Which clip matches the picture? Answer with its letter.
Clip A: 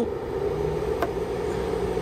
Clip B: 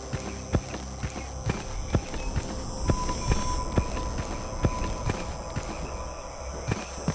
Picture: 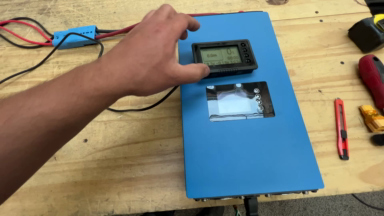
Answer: A